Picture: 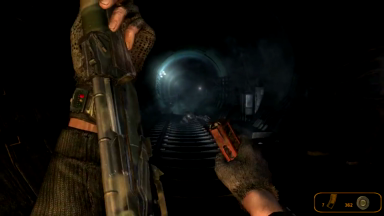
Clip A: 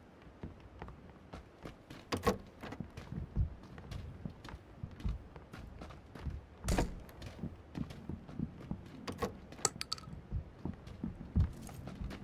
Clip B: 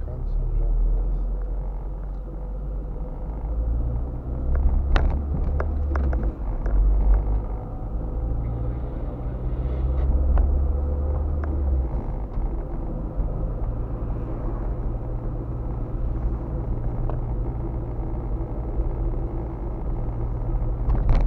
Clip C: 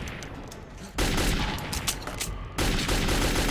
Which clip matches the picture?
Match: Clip C